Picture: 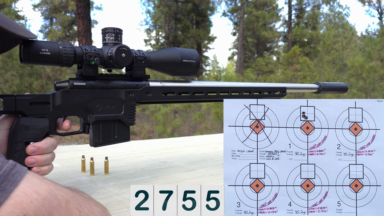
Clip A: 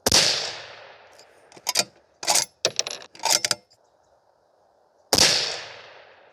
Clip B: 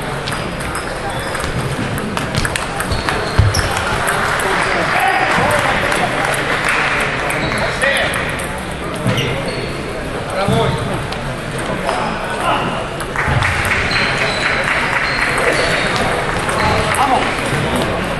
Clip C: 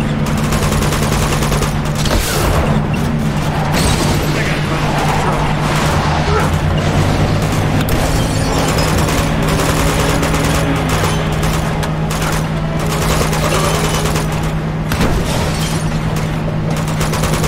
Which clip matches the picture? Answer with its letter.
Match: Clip A